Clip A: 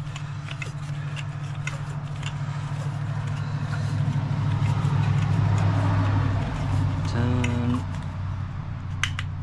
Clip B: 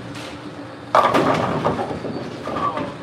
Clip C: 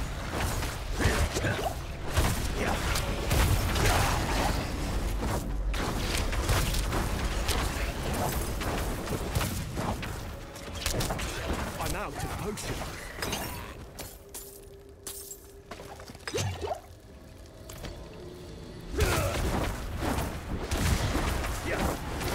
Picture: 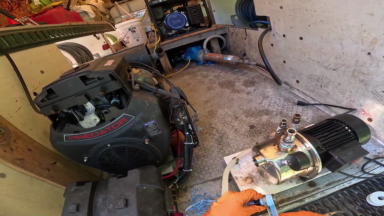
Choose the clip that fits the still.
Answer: A